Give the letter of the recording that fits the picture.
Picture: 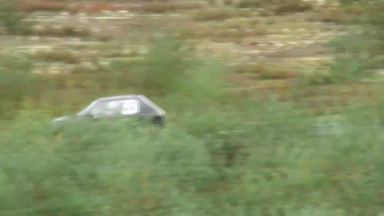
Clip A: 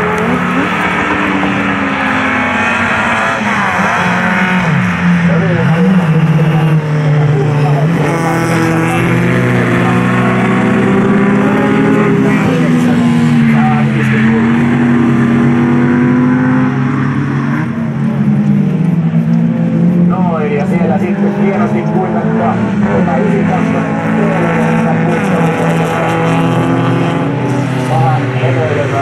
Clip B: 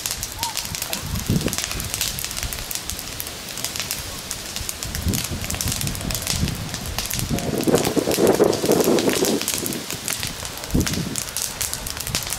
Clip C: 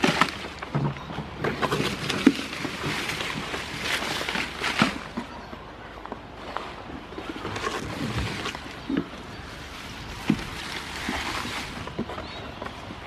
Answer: A